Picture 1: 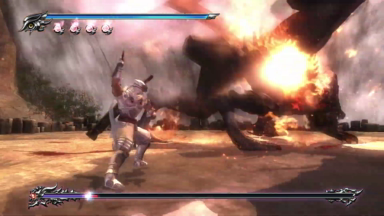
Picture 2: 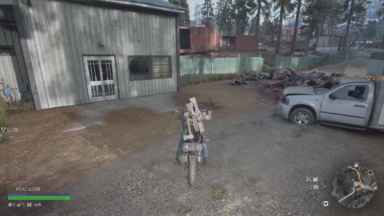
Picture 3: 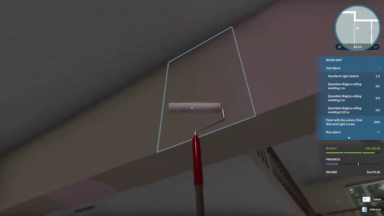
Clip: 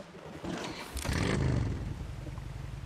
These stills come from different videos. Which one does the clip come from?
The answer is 2